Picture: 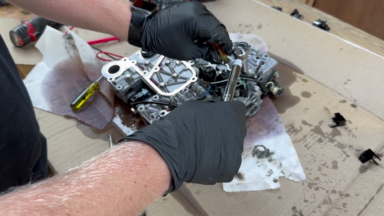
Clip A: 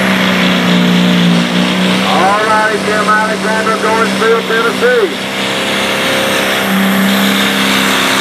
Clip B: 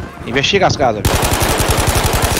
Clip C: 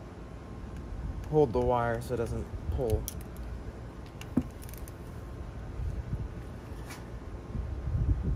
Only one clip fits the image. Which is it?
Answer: C